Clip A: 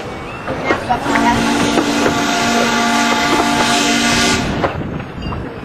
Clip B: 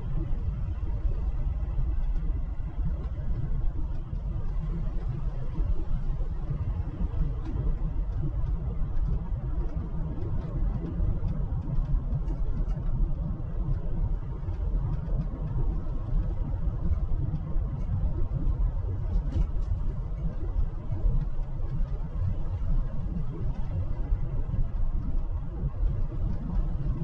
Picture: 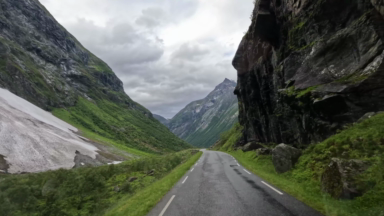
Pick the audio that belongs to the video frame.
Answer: B